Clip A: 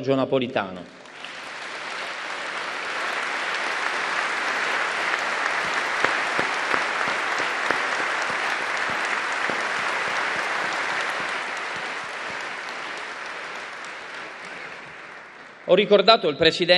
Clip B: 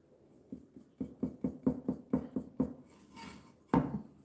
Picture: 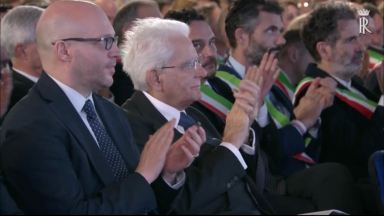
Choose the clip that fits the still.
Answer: A